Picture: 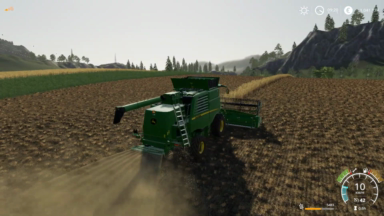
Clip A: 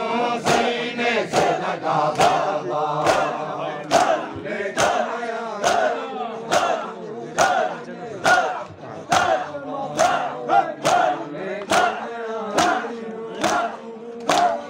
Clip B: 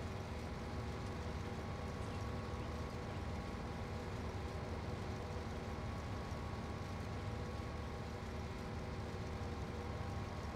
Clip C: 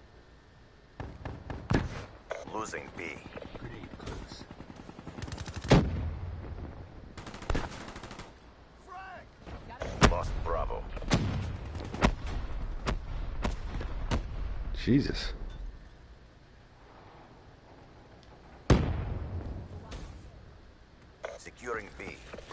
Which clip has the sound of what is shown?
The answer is B